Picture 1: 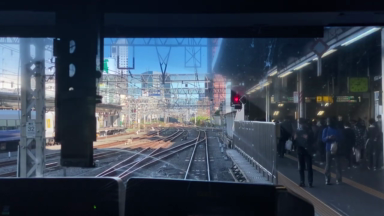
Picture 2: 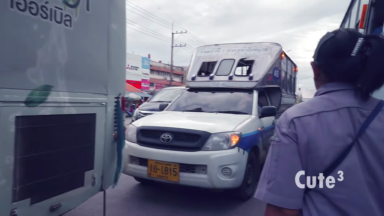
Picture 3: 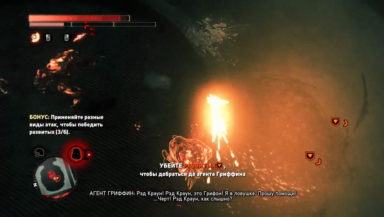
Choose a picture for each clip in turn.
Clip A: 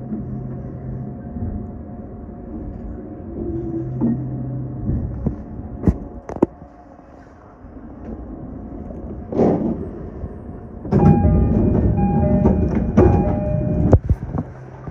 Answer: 1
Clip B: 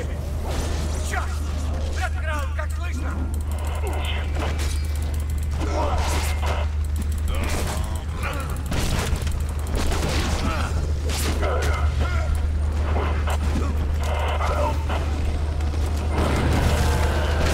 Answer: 3